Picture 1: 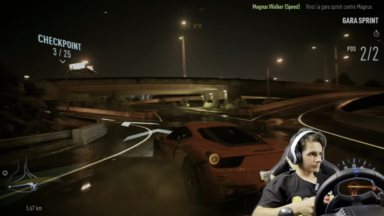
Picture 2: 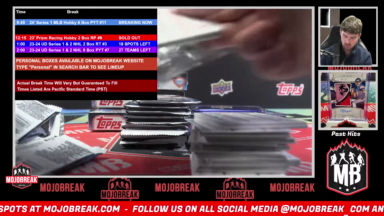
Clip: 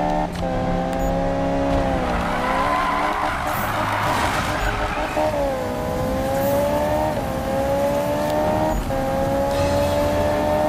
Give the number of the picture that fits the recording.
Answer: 1